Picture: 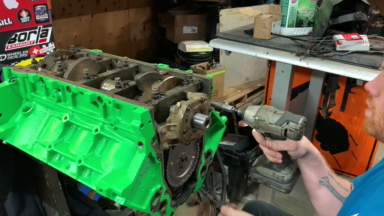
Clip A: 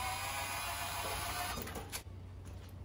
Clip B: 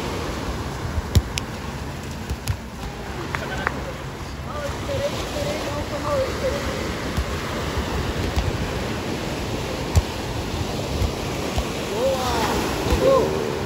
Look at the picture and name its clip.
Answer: A